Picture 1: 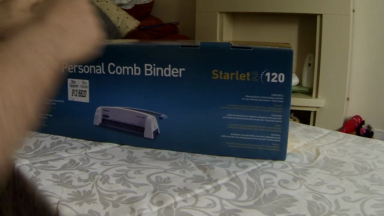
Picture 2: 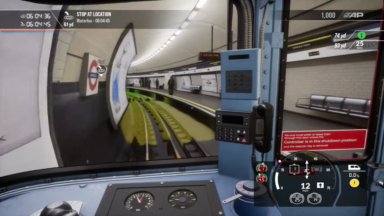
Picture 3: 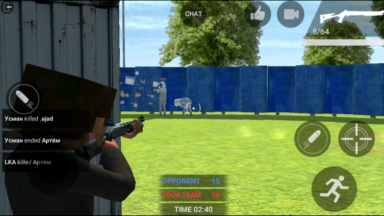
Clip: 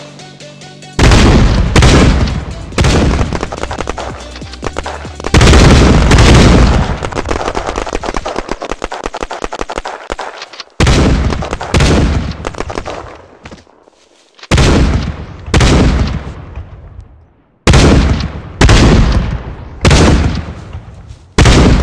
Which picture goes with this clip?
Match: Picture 3